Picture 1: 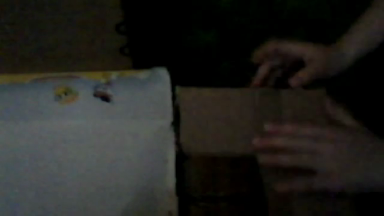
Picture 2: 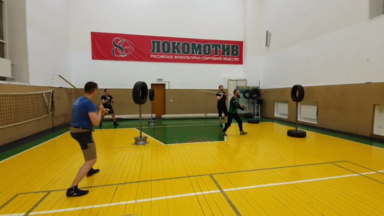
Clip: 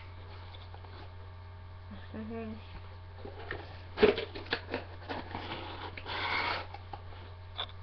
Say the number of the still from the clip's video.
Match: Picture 1